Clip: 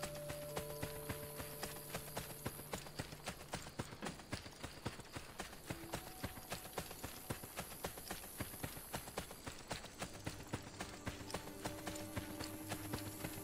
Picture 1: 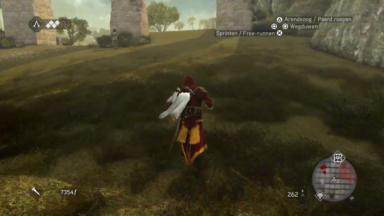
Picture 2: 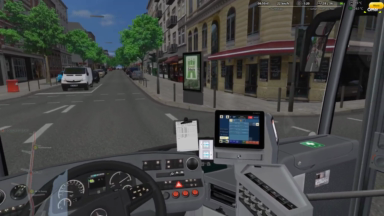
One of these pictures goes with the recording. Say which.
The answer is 1